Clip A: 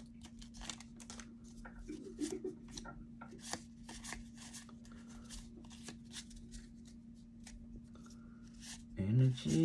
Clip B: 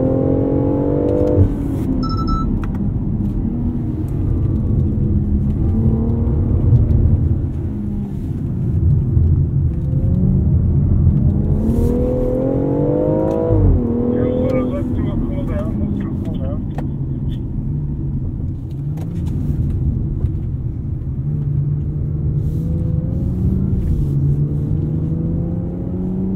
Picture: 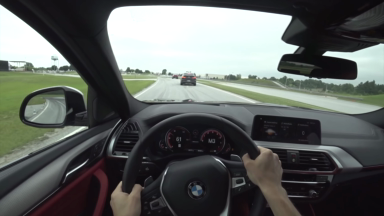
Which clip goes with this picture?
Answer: B